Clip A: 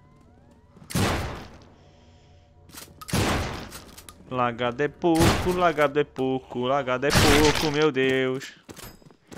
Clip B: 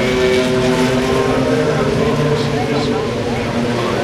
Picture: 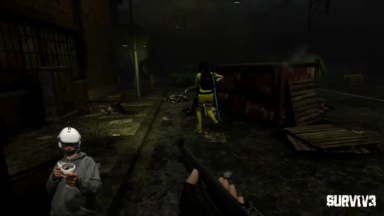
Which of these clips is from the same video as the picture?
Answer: A